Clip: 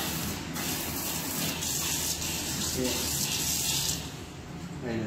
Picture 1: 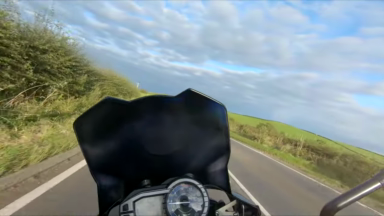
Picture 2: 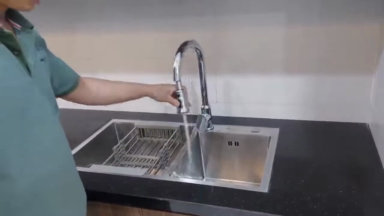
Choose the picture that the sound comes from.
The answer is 2